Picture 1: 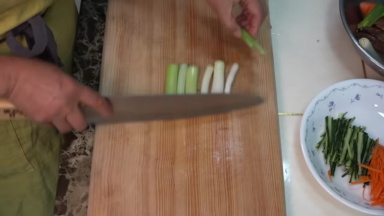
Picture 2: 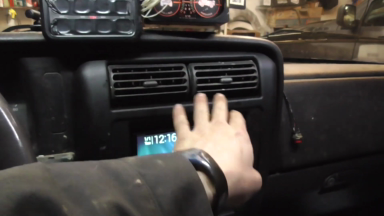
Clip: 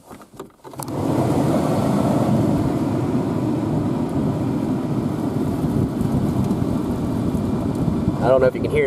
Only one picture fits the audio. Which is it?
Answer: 2